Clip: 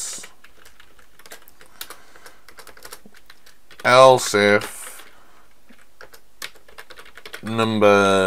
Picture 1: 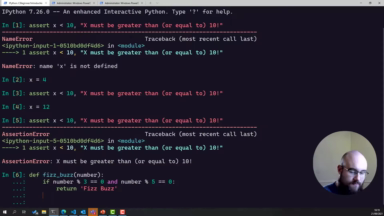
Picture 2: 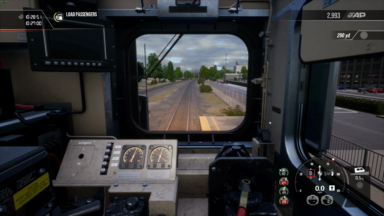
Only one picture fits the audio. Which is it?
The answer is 1